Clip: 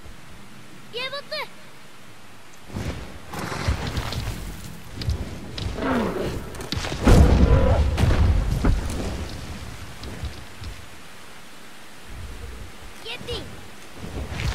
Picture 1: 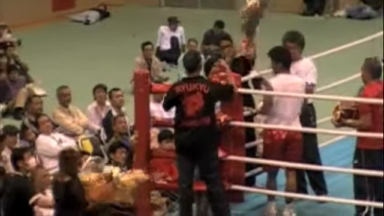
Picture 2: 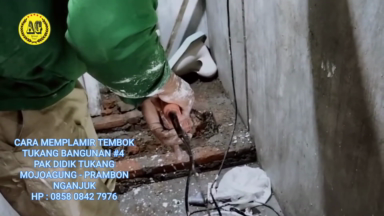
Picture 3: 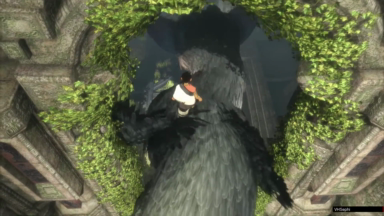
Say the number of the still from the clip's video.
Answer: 3